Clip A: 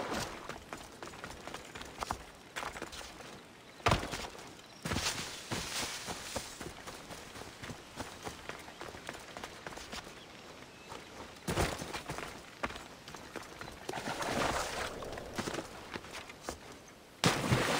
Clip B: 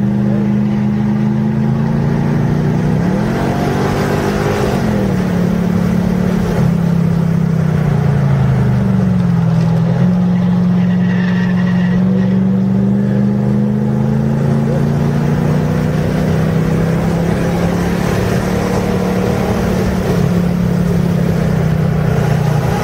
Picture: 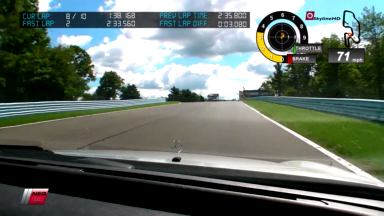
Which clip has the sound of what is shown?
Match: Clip B